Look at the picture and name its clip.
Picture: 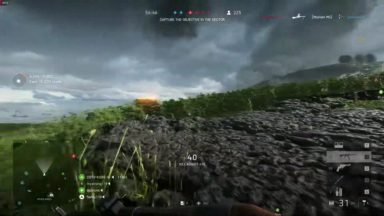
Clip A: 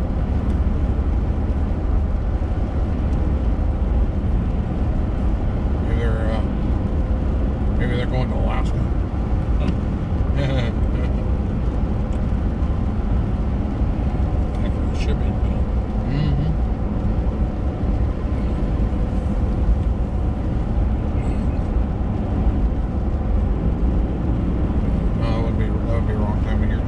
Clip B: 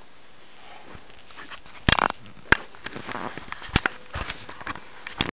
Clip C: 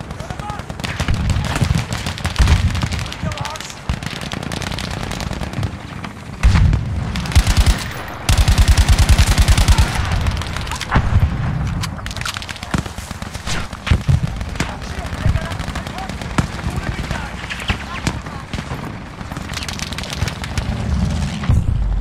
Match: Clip C